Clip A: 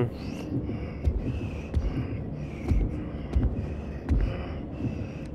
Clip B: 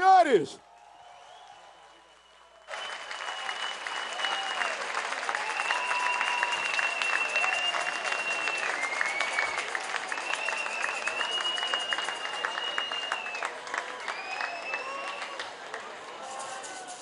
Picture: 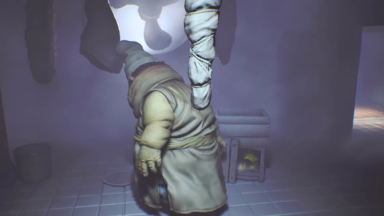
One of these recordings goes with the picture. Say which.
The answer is A